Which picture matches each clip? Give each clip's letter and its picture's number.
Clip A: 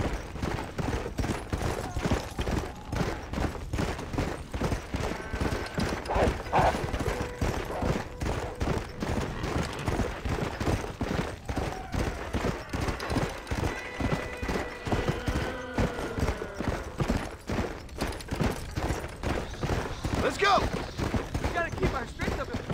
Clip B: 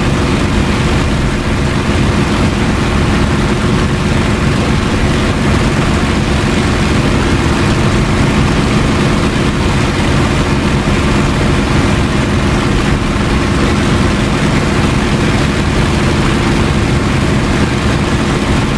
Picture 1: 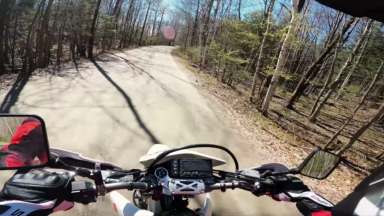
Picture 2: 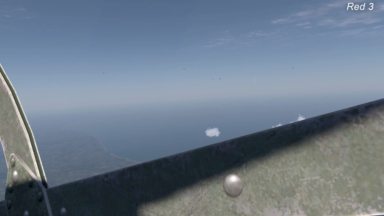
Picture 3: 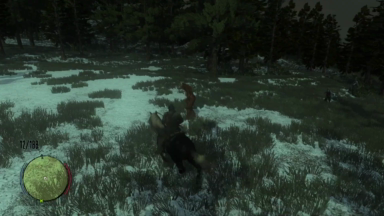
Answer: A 3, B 2